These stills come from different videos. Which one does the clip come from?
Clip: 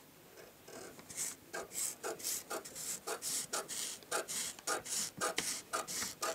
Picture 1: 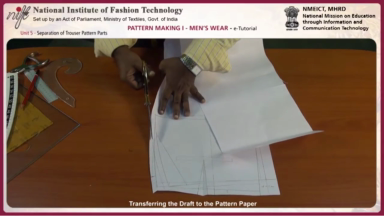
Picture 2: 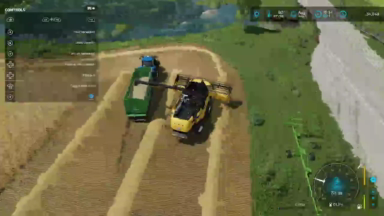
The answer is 1